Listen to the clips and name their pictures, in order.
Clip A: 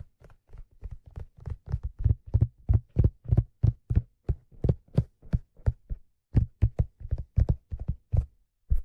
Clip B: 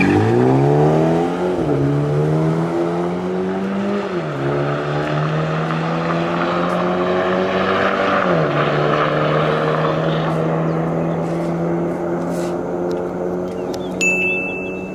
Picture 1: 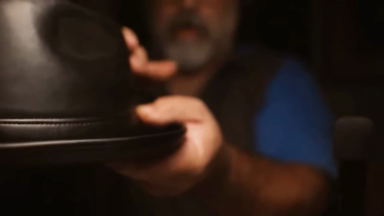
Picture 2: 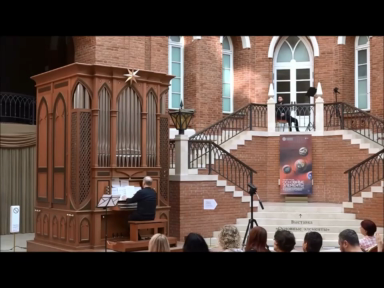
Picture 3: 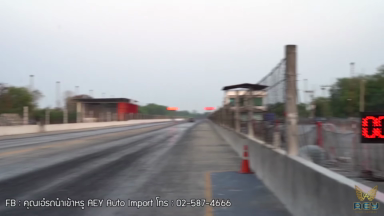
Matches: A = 1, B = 3